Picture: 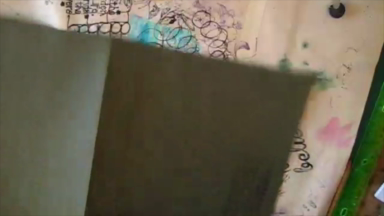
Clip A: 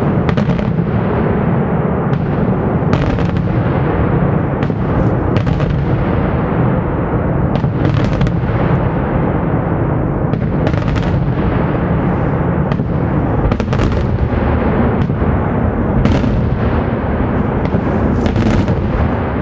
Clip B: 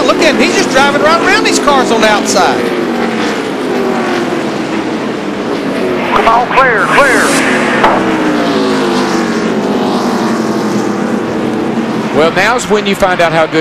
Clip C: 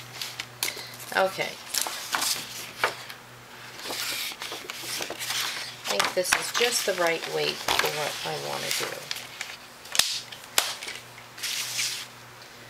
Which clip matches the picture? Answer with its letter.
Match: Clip C